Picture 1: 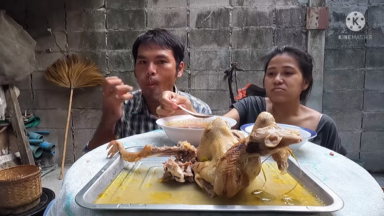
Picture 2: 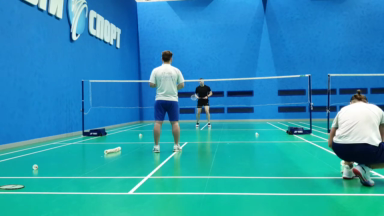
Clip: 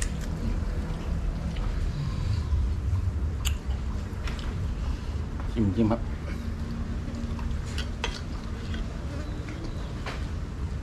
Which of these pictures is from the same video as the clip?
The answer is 1